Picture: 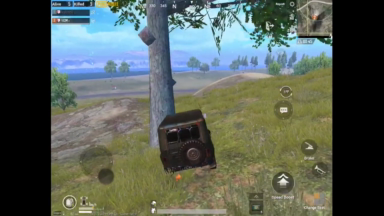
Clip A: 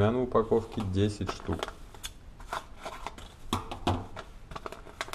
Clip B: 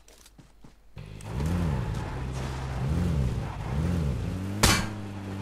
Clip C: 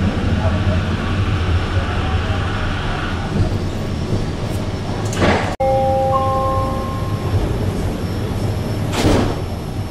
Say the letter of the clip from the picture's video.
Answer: B